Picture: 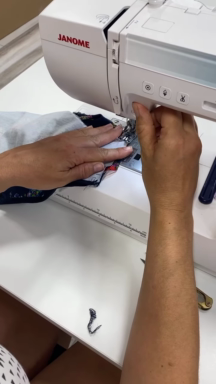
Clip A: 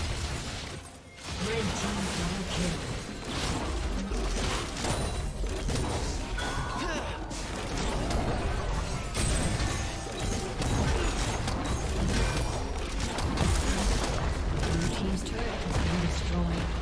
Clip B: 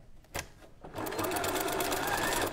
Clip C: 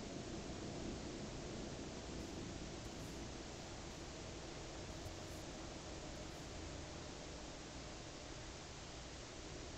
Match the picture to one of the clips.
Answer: B